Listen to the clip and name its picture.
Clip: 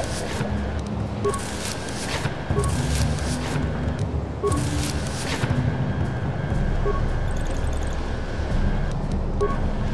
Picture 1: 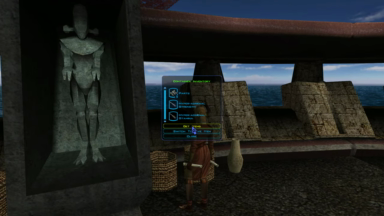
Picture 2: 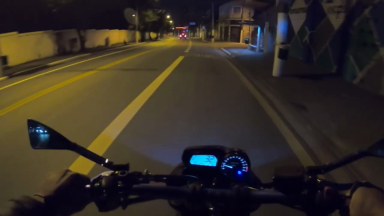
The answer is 1